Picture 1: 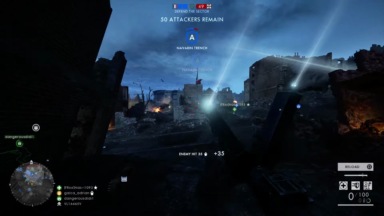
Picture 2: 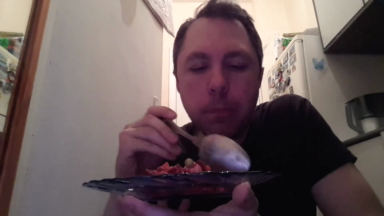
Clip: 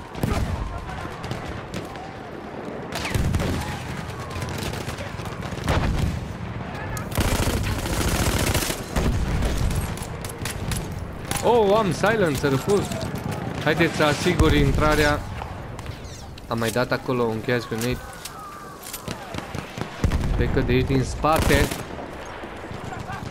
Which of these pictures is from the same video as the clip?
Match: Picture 1